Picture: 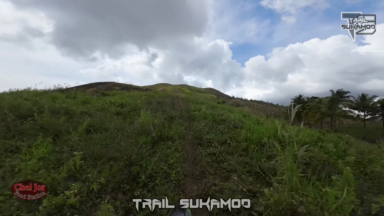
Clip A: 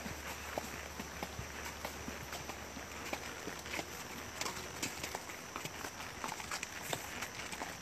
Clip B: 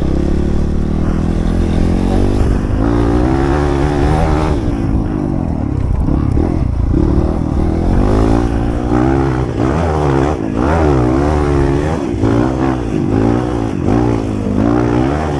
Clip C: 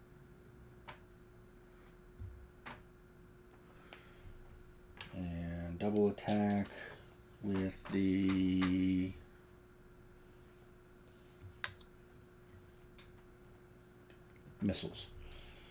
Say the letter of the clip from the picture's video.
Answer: B